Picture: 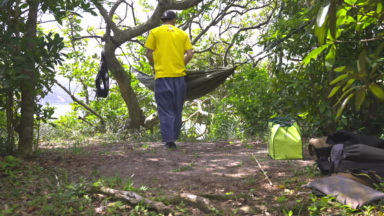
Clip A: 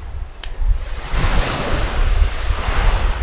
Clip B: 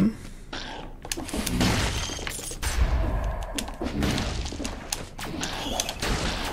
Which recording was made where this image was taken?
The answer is A